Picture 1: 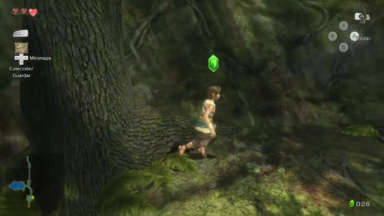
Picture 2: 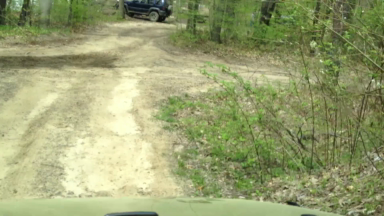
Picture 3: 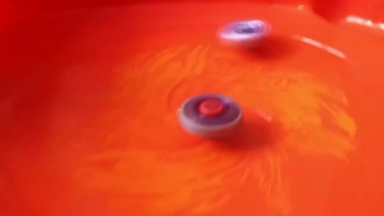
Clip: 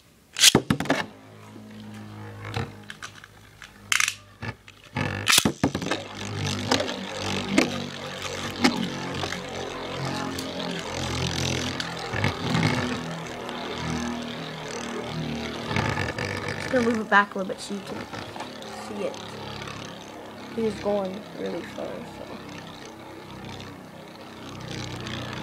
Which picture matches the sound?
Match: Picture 3